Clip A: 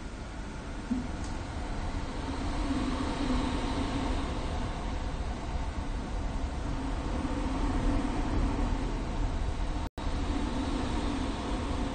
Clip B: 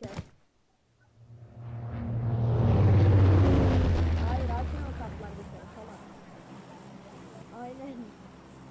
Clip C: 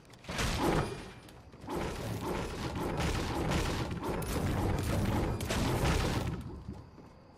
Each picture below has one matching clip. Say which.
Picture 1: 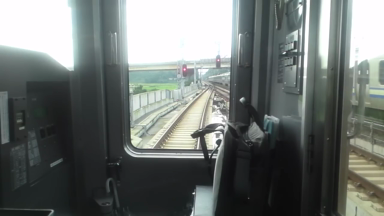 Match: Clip A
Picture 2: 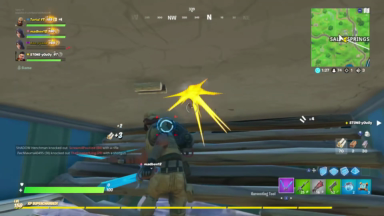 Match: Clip C